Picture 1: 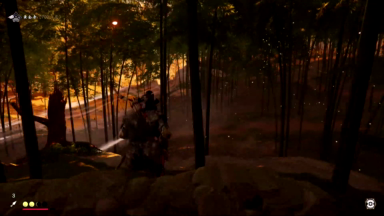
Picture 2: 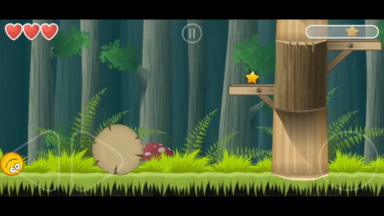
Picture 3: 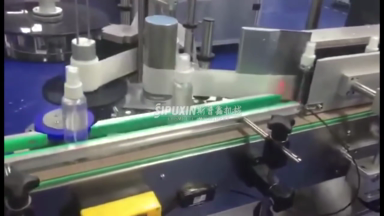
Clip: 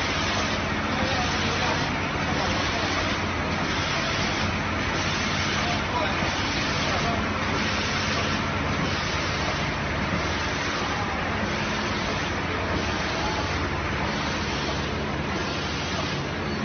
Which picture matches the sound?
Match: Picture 3